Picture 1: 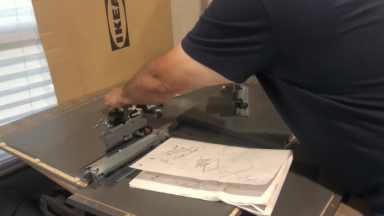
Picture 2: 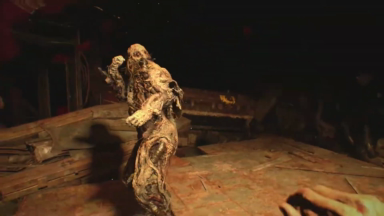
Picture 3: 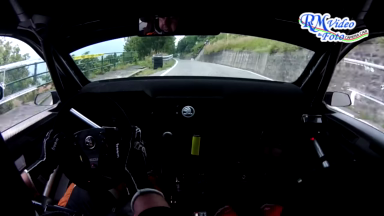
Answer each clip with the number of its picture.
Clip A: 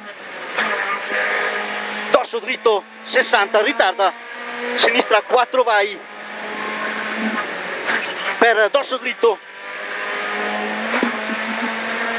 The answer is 3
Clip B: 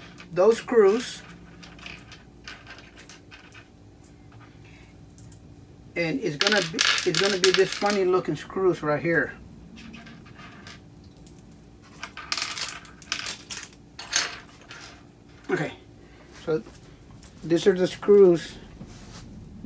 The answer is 1